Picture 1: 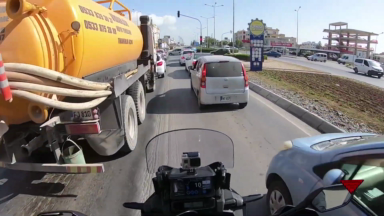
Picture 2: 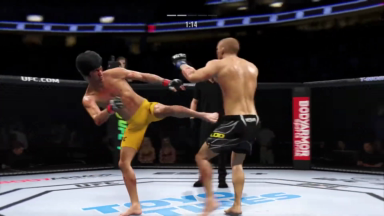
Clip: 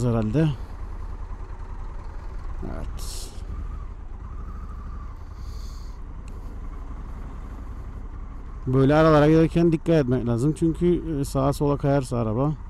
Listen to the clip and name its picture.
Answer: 1